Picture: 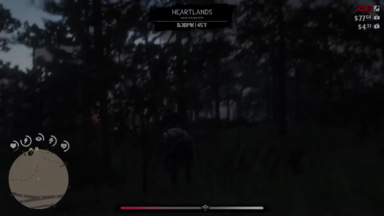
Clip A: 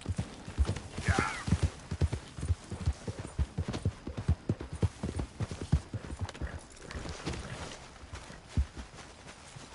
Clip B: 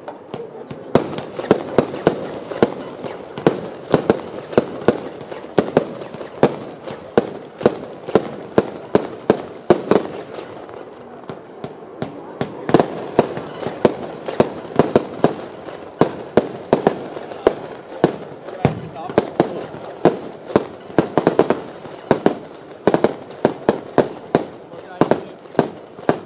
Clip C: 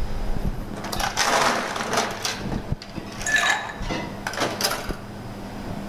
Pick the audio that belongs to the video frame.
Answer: A